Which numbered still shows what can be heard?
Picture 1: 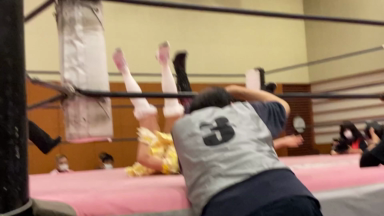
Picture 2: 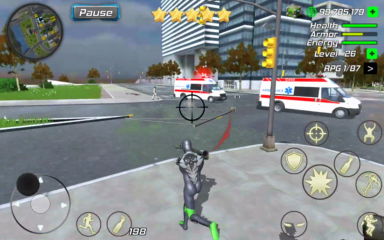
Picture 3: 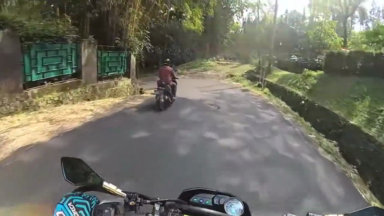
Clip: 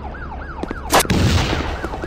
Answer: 2